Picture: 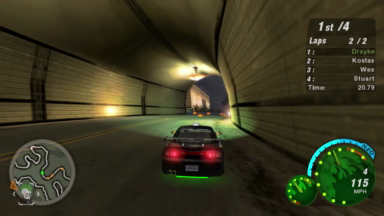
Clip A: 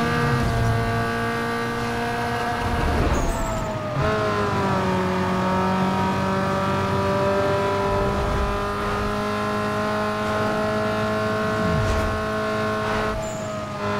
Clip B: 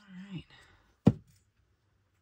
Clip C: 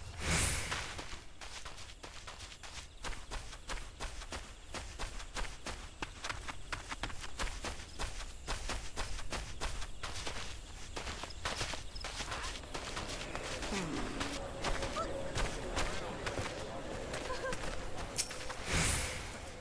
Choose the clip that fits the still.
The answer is A